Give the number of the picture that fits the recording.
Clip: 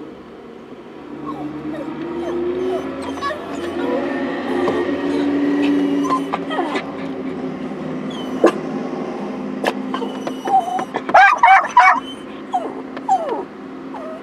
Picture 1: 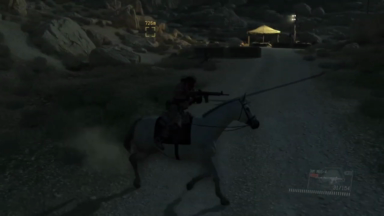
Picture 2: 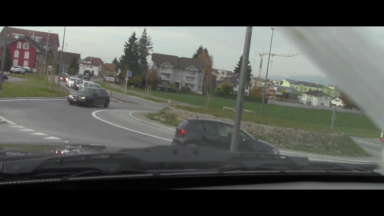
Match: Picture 2